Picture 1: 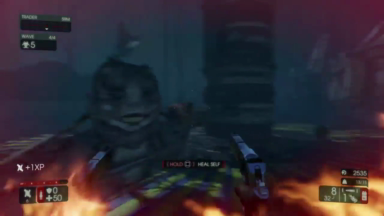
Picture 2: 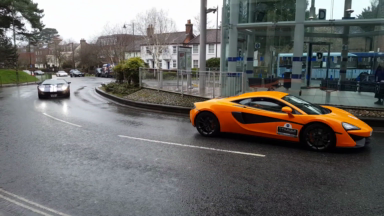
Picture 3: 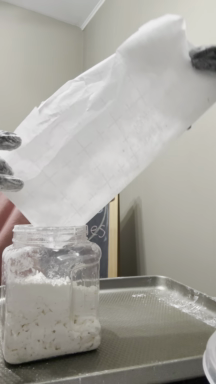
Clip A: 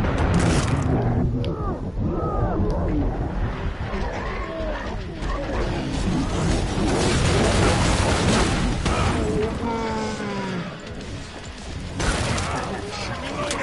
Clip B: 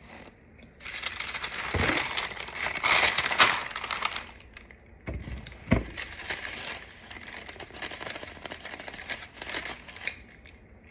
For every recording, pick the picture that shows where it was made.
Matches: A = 1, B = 3